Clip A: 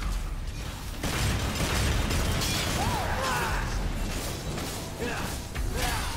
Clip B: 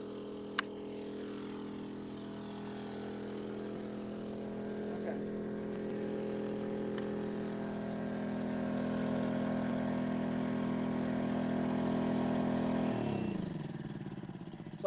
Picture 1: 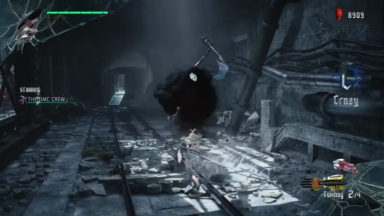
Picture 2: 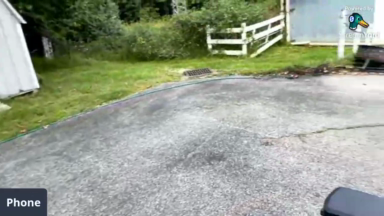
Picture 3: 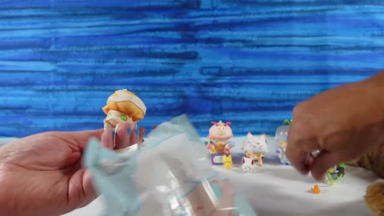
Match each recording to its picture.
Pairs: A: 1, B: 2